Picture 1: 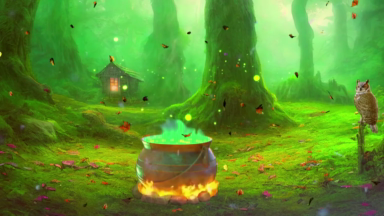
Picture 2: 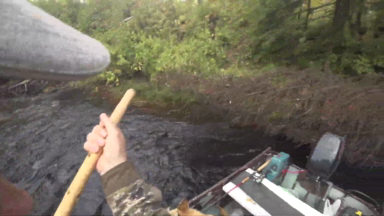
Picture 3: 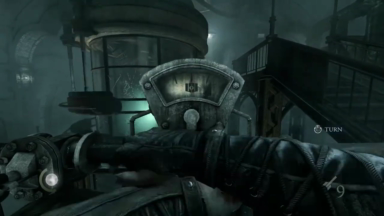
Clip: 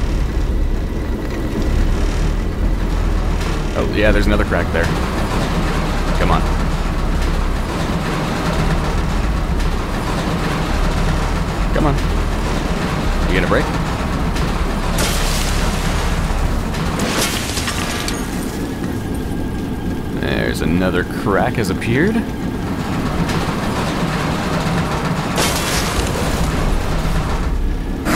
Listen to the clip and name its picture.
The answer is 3